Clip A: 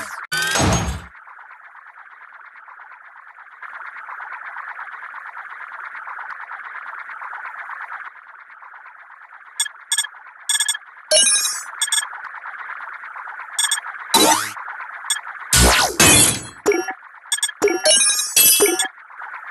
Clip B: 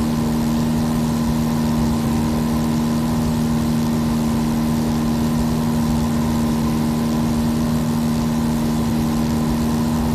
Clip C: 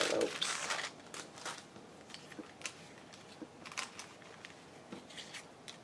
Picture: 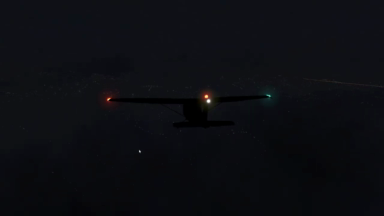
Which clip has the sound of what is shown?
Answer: B